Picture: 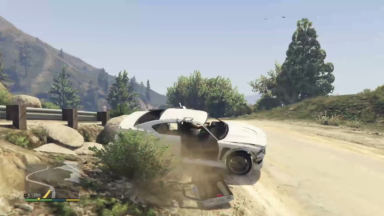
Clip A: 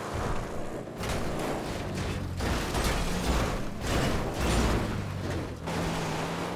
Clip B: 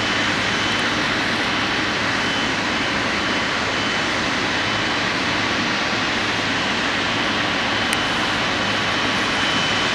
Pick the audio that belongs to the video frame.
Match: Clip A